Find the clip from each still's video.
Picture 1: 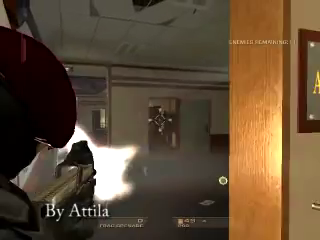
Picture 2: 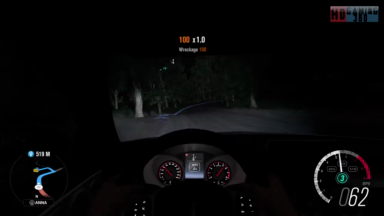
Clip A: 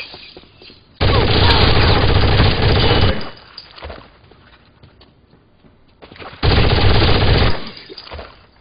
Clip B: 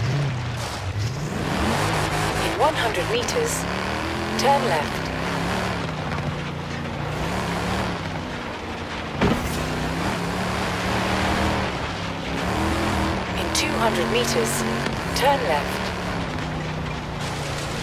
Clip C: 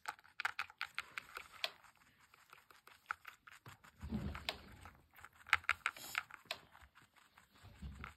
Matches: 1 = A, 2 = B